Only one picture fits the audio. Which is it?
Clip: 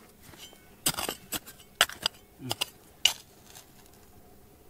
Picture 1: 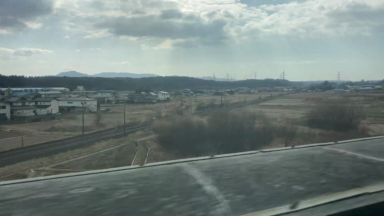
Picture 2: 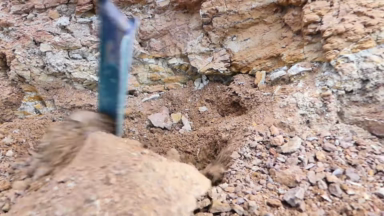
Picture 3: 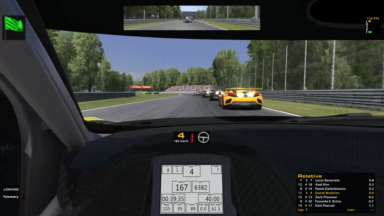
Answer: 2